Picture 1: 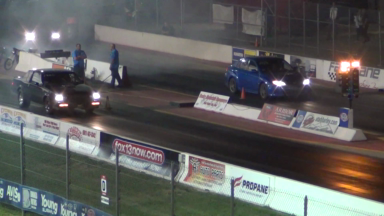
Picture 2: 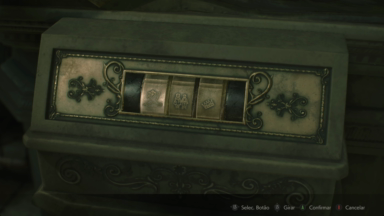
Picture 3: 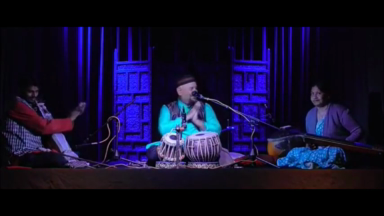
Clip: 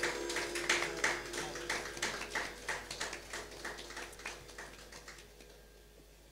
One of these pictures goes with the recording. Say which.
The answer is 3